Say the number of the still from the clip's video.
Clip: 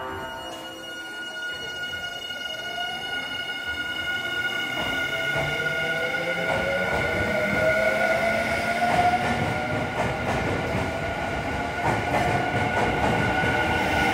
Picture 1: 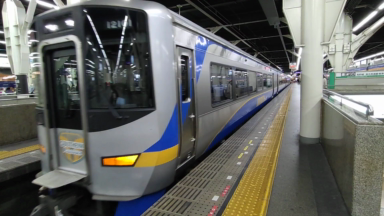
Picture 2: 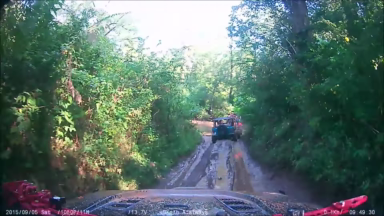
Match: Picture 1